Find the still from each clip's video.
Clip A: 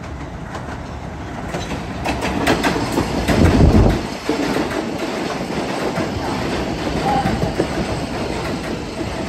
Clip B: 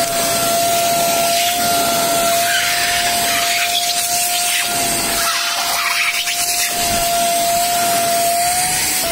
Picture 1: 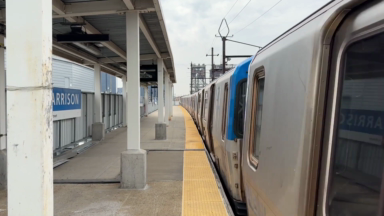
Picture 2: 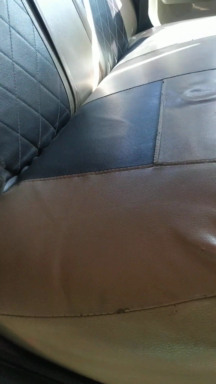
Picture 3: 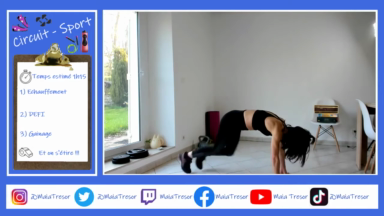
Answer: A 1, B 2